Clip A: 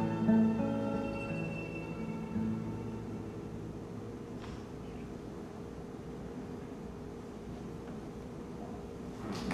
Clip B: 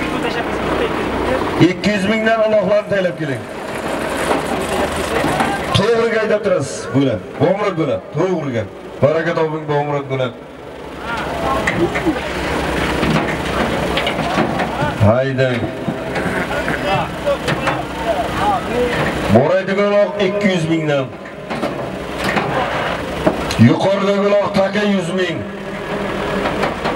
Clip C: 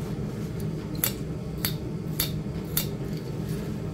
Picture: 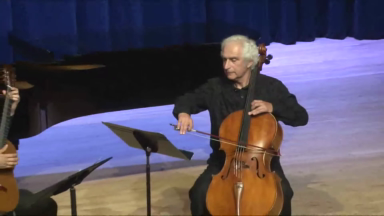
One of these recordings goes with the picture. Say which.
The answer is A